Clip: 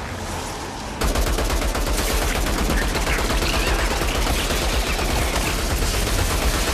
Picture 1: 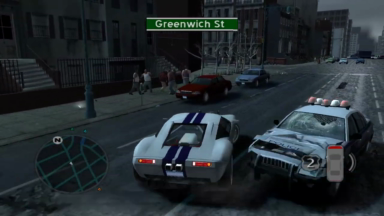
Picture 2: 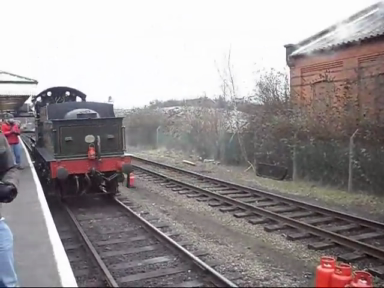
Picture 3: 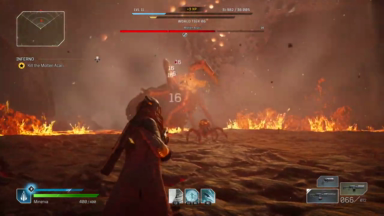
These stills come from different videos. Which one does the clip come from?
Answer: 3